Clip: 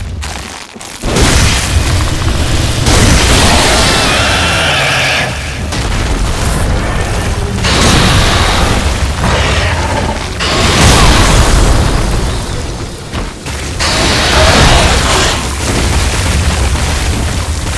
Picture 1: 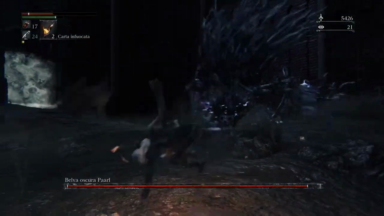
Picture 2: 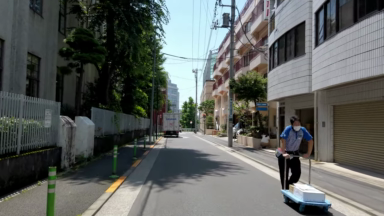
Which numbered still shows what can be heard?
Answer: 1